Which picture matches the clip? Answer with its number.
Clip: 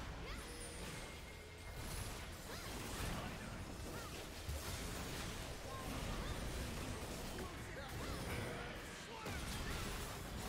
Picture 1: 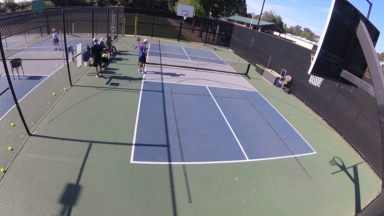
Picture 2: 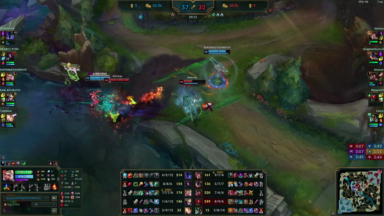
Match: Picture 2